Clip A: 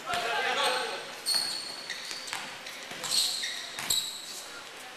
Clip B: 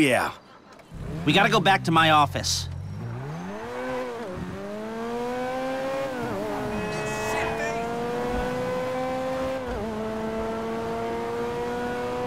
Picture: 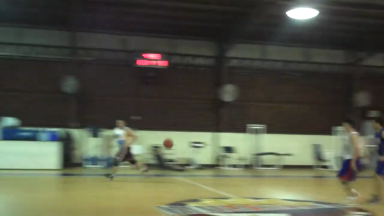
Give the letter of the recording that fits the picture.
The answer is A